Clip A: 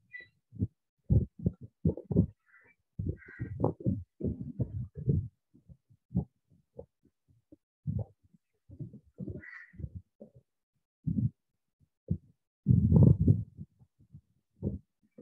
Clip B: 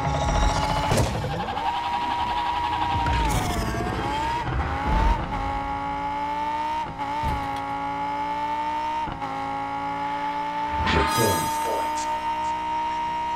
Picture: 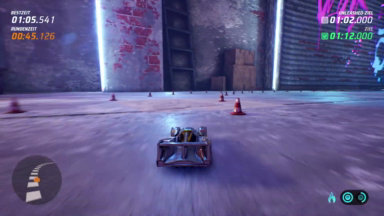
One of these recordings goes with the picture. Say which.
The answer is B